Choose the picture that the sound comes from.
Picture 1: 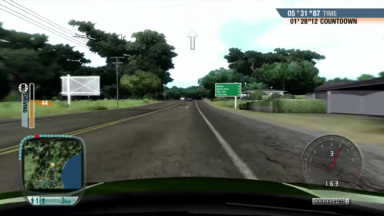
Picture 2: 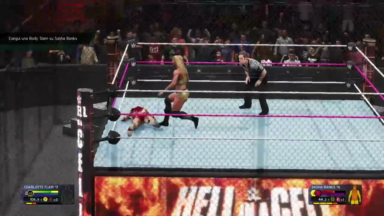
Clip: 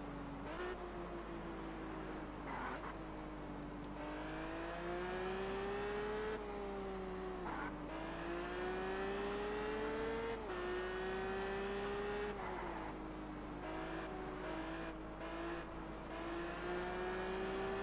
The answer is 1